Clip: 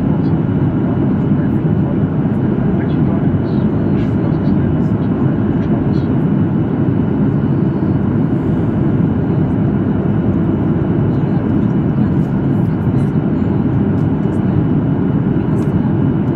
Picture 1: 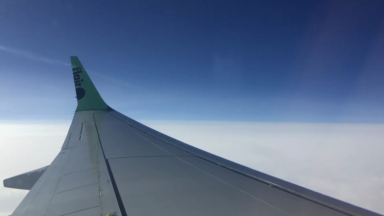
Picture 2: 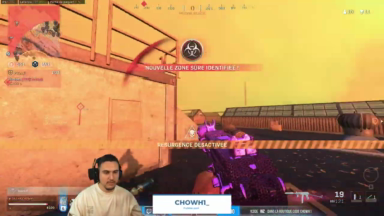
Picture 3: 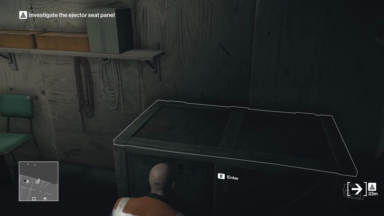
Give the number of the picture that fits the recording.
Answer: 1